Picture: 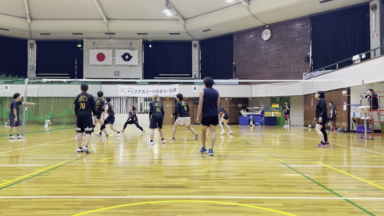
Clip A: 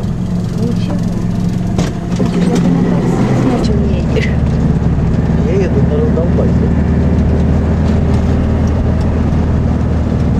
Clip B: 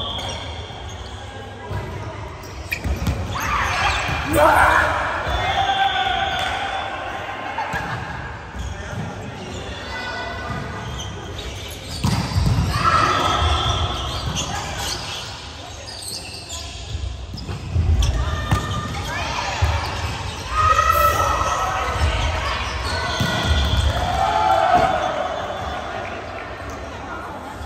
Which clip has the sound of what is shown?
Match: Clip B